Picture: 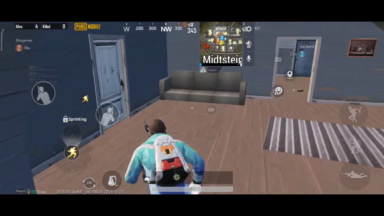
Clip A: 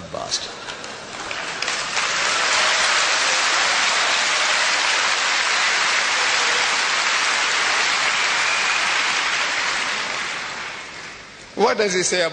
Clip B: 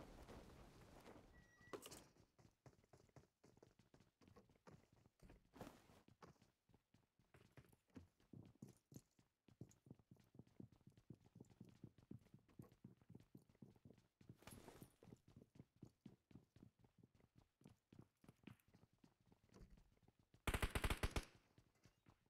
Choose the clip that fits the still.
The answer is B